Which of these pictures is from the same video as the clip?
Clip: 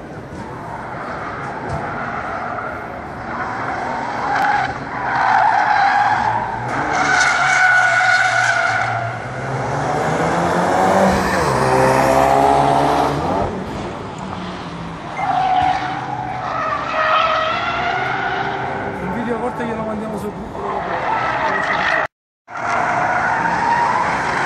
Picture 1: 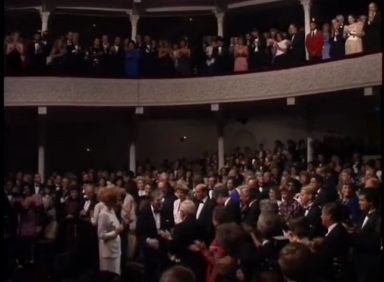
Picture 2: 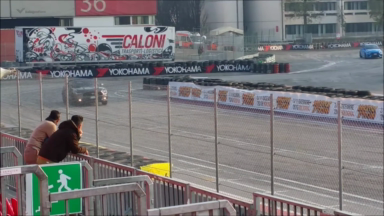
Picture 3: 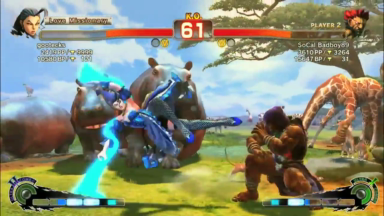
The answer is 2